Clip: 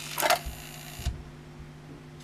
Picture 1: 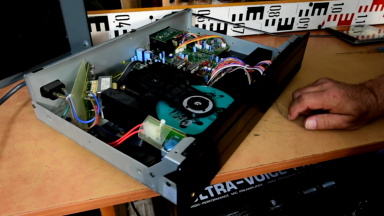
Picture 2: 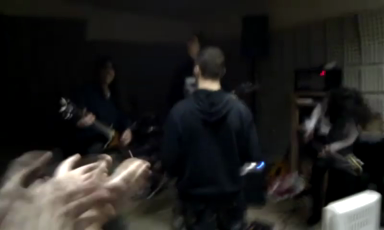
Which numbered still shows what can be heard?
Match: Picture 1